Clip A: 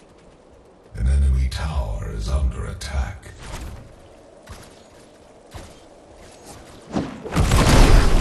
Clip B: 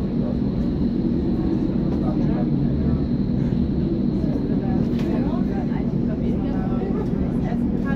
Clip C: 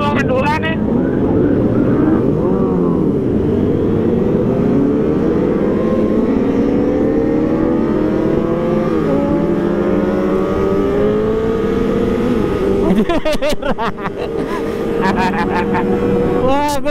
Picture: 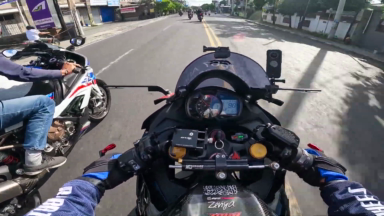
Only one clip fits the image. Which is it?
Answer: C